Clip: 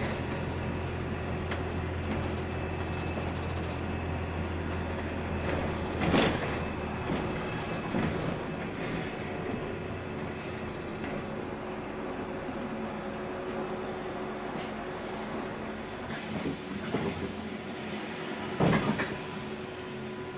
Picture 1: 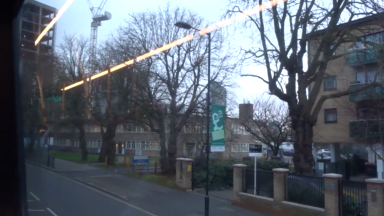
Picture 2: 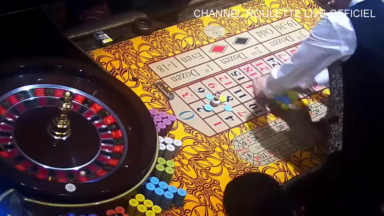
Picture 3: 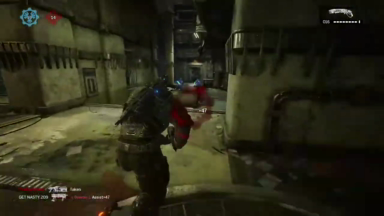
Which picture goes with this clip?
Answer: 1